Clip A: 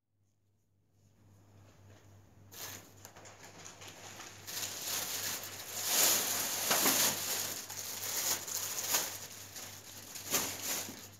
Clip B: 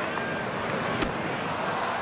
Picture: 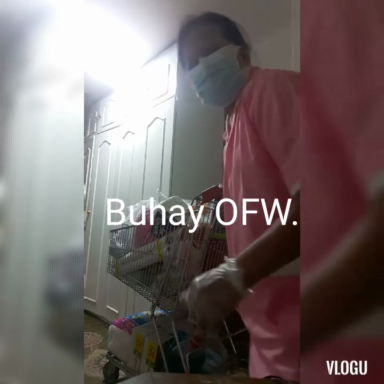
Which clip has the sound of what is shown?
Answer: A